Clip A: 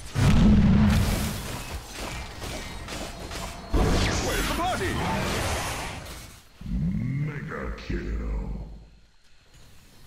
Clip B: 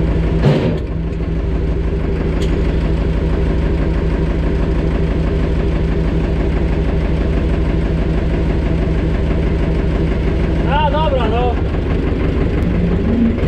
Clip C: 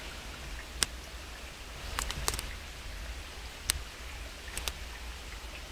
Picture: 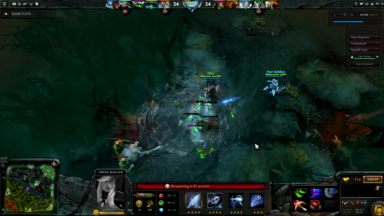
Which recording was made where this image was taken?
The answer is A